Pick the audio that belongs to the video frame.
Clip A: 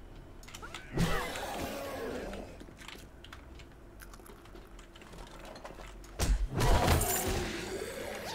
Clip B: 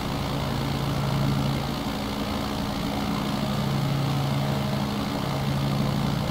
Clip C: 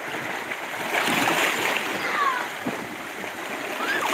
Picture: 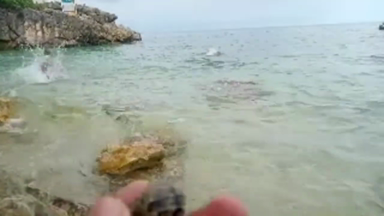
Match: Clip C